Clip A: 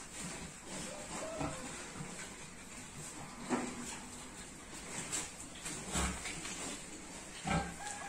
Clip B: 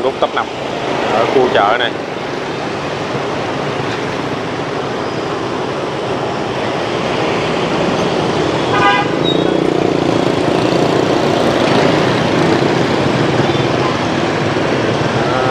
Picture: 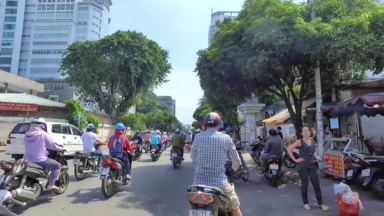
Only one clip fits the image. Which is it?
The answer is B